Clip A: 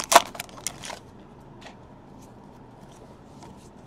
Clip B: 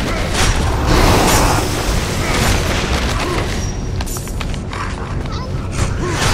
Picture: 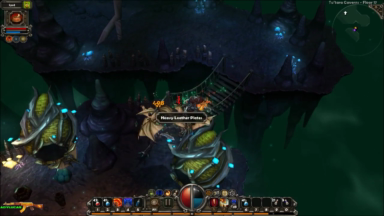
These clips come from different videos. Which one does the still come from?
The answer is B